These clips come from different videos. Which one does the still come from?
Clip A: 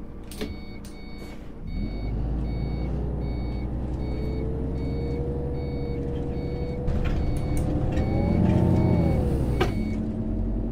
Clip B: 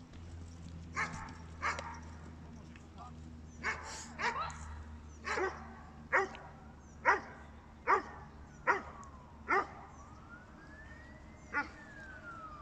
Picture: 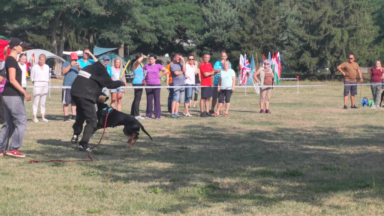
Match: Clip B